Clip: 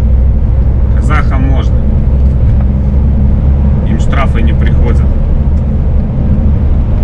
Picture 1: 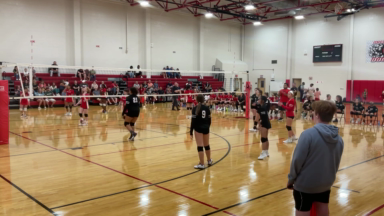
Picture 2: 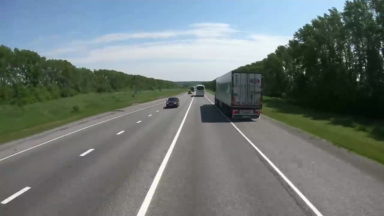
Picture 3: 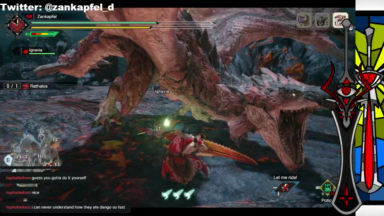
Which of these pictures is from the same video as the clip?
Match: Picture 2